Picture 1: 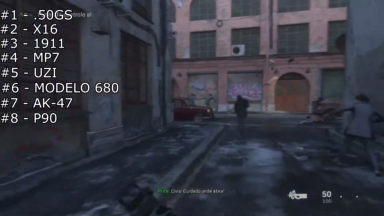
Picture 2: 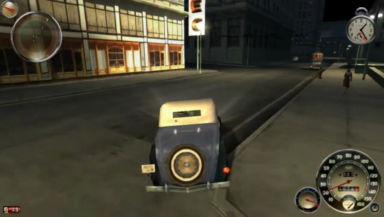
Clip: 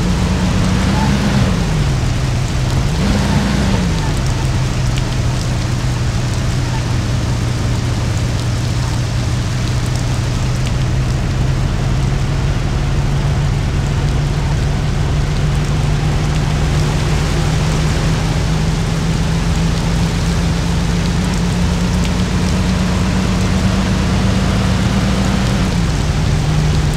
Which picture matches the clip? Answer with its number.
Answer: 2